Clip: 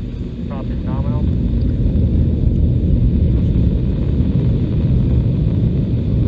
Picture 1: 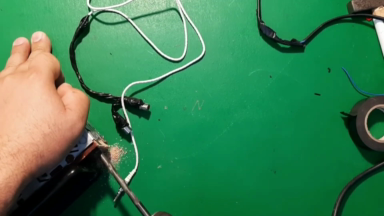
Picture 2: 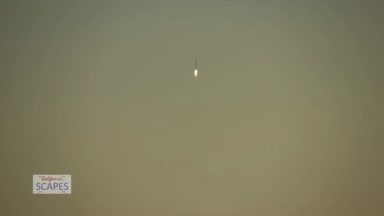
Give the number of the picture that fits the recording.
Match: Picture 2